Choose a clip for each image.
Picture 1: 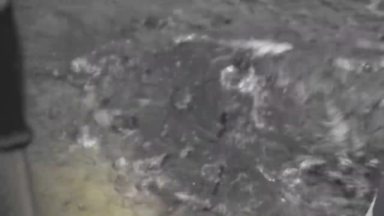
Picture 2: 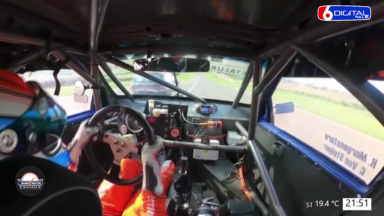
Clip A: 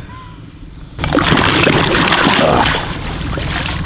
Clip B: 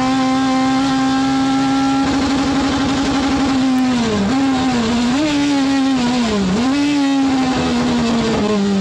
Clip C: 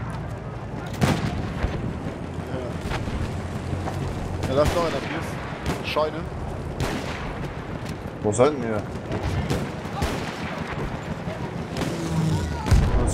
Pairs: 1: A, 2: B